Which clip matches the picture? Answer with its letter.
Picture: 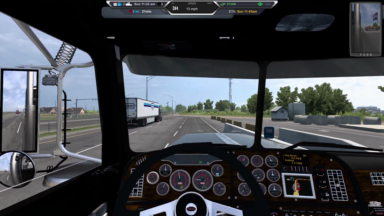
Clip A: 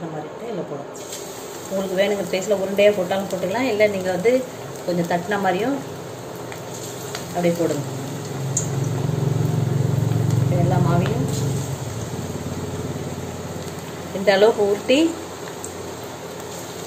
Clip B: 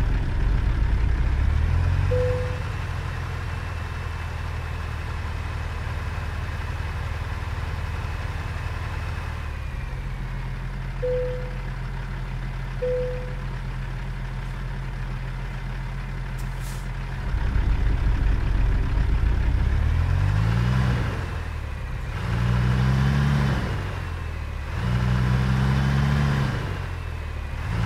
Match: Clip B